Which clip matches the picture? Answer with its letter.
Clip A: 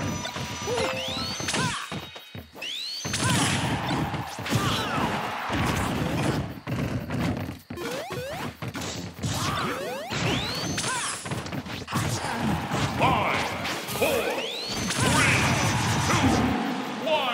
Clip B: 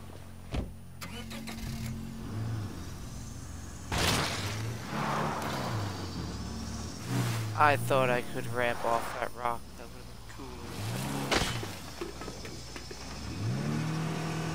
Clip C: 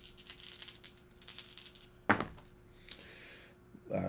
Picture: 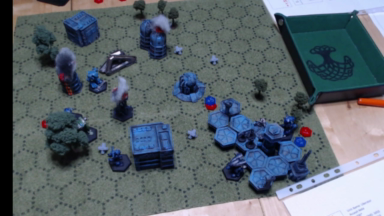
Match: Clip C